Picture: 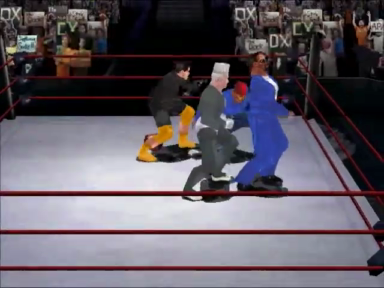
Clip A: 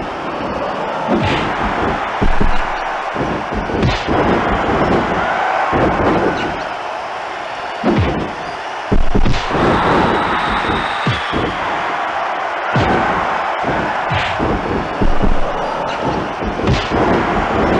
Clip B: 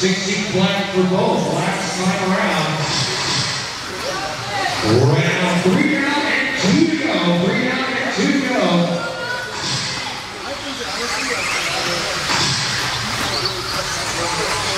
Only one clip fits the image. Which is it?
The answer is A